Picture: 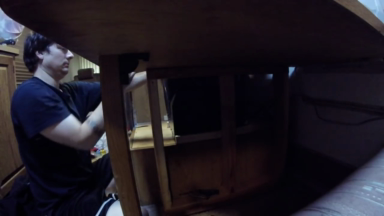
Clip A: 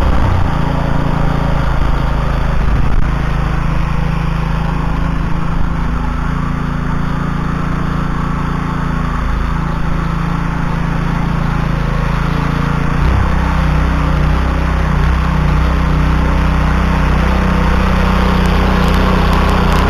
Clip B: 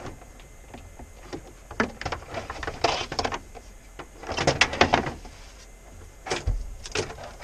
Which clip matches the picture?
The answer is B